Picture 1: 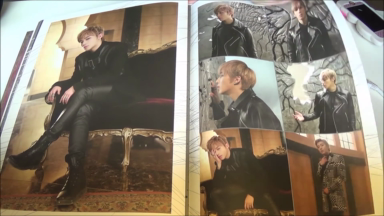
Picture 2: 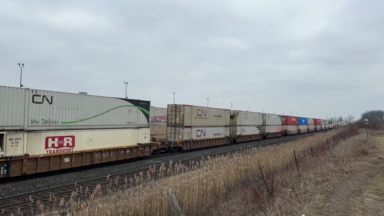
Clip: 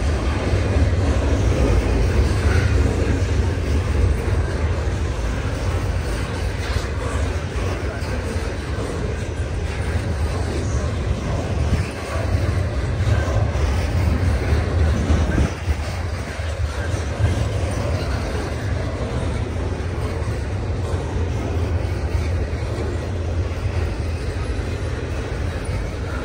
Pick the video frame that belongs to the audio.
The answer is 2